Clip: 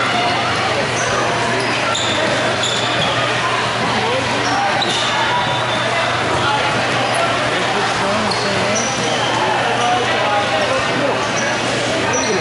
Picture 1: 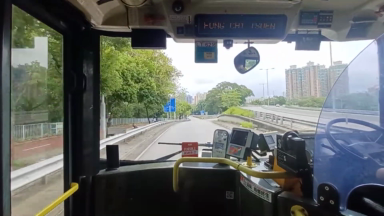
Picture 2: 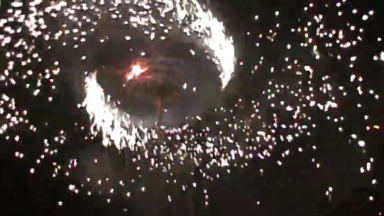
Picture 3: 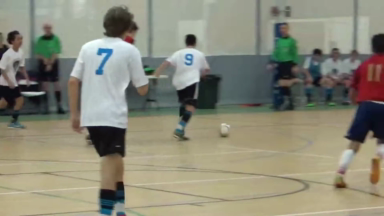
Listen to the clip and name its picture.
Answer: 3